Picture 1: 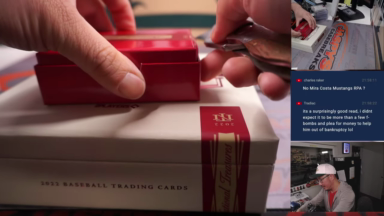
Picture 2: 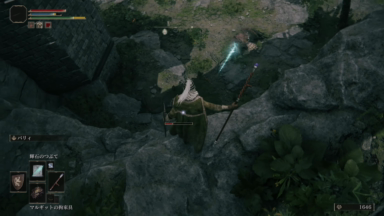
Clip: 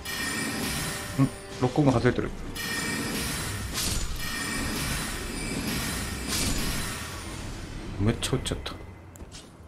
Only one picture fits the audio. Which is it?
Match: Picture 2